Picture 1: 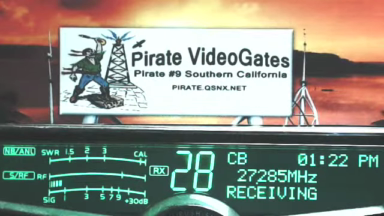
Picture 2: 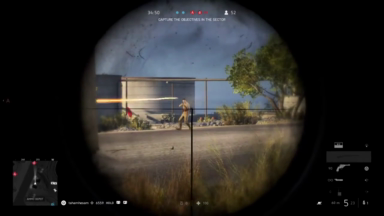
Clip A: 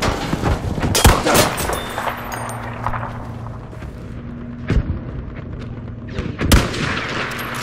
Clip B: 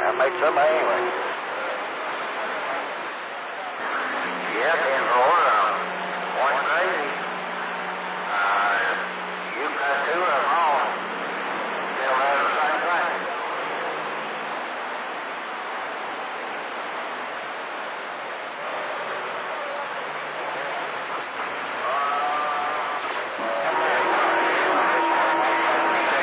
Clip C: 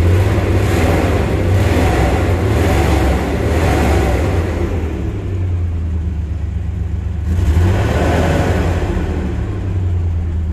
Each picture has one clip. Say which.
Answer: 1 B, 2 A